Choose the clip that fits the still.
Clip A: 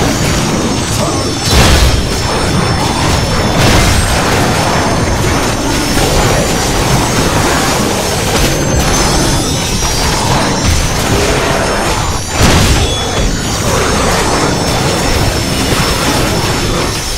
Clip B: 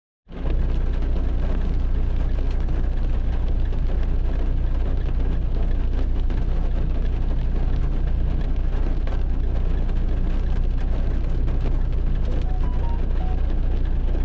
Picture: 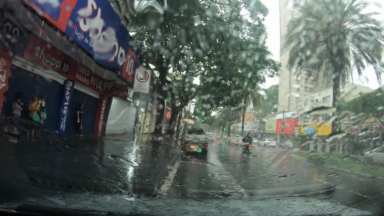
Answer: B